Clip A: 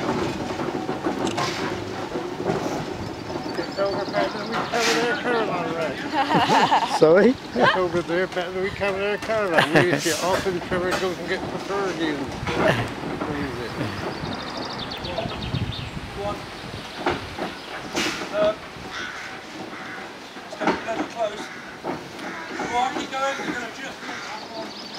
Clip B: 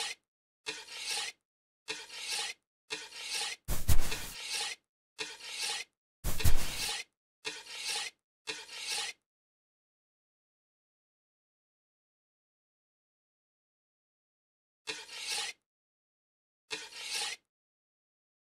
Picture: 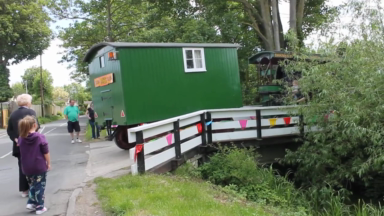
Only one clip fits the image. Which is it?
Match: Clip A